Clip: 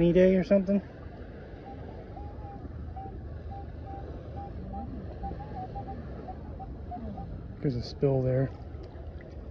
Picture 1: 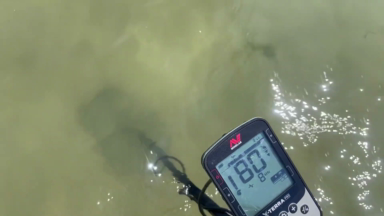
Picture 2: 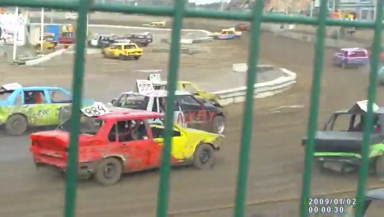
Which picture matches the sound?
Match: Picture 1